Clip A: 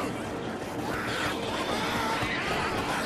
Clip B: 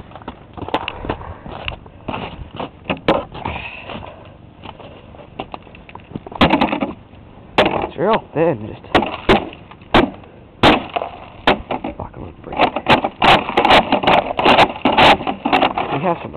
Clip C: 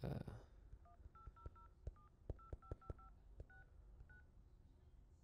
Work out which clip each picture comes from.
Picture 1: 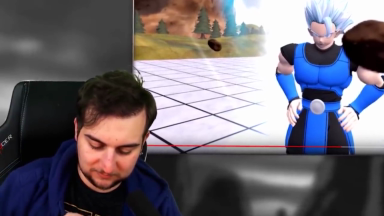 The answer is C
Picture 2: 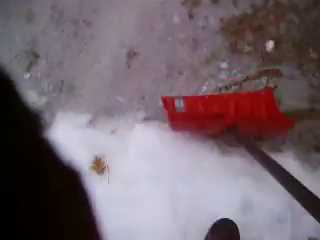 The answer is B